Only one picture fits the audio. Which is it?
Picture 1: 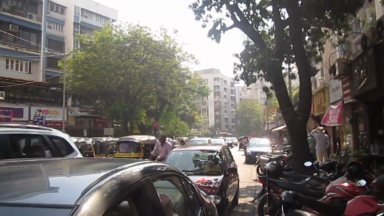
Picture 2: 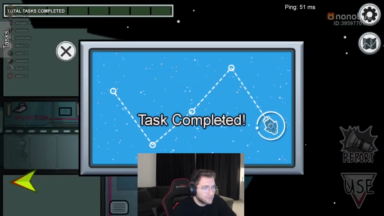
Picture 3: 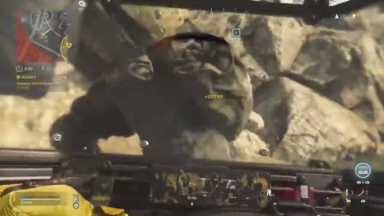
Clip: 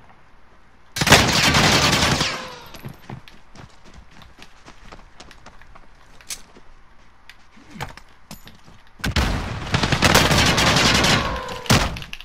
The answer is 3